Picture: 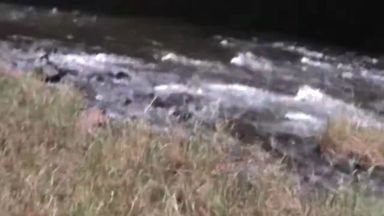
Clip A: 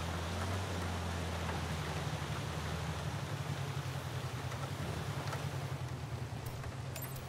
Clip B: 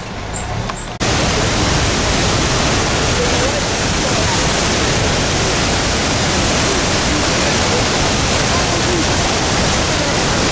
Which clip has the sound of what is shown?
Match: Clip B